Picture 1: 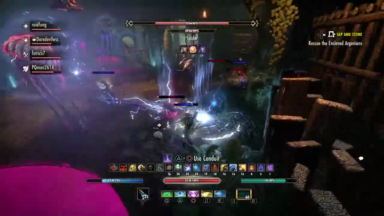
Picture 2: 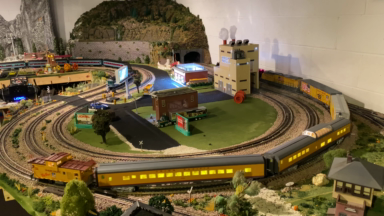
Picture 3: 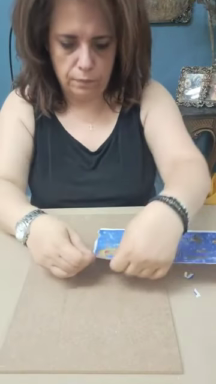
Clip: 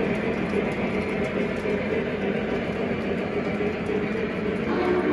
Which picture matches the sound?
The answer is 2